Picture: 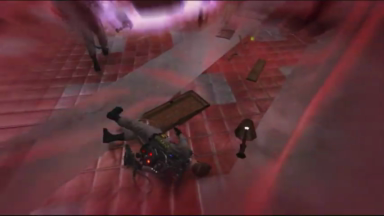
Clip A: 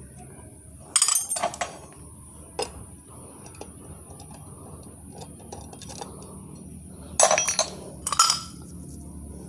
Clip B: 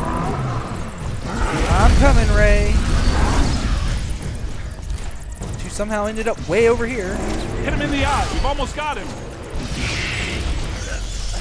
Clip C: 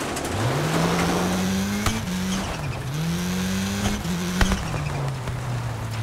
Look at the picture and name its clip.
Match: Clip B